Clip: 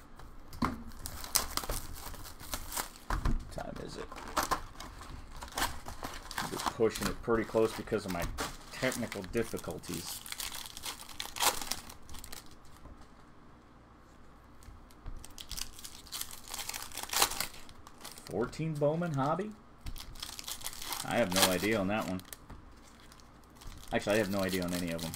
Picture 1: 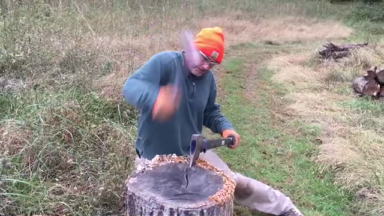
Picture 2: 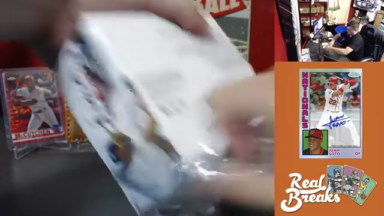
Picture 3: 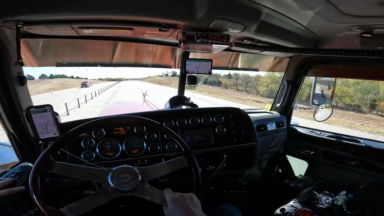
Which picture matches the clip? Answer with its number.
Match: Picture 2